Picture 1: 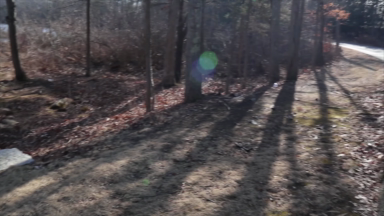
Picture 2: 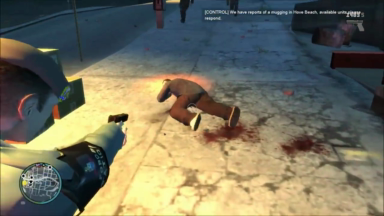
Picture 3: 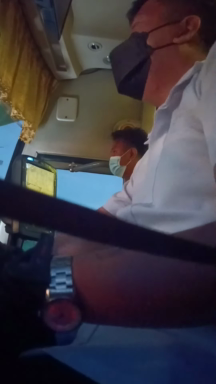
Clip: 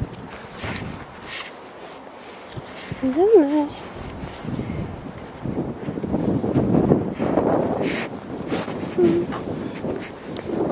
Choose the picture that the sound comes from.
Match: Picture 1